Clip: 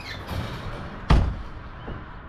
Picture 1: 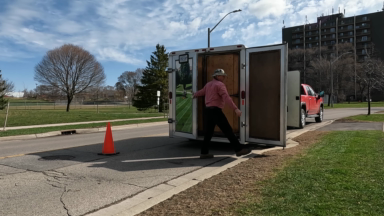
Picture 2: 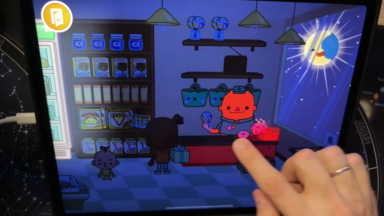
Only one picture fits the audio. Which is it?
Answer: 1